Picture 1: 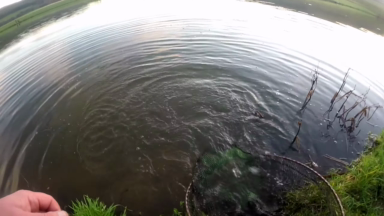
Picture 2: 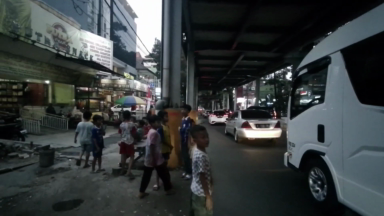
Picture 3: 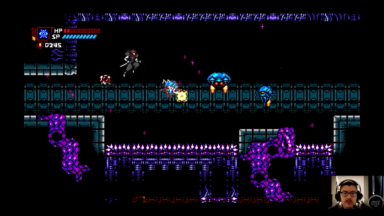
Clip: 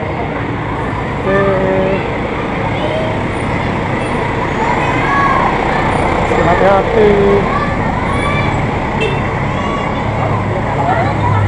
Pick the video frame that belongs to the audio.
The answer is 2